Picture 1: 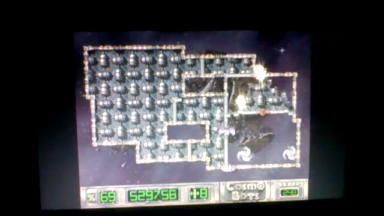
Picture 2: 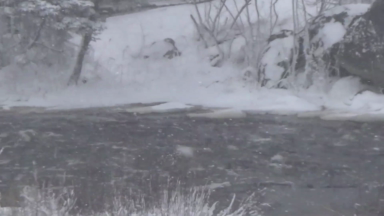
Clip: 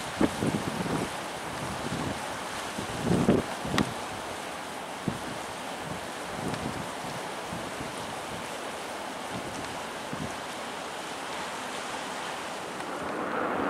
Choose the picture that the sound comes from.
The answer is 2